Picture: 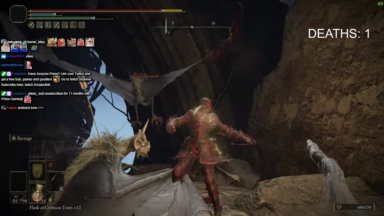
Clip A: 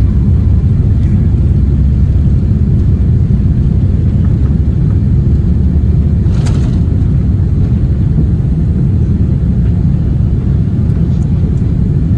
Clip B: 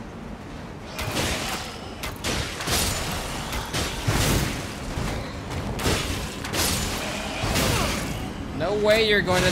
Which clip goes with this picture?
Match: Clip B